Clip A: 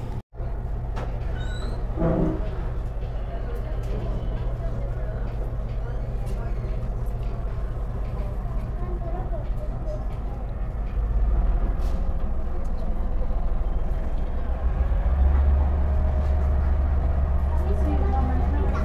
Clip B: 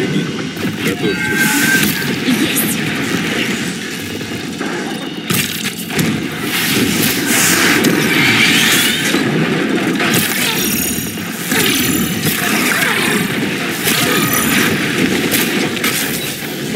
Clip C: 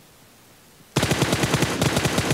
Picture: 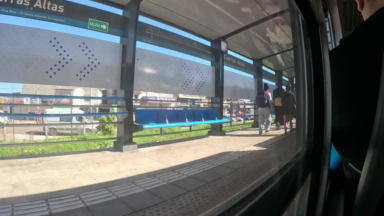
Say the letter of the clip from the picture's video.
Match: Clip A